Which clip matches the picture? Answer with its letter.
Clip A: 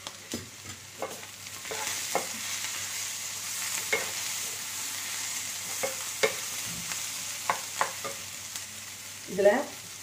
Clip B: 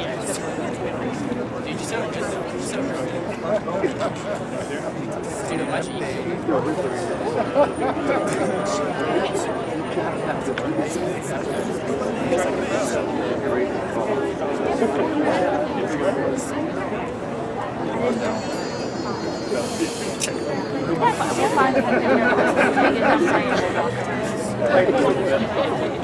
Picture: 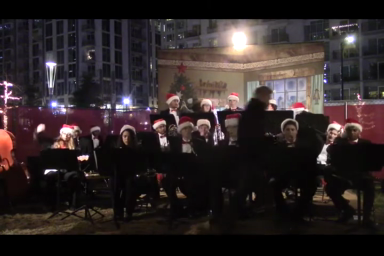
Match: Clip B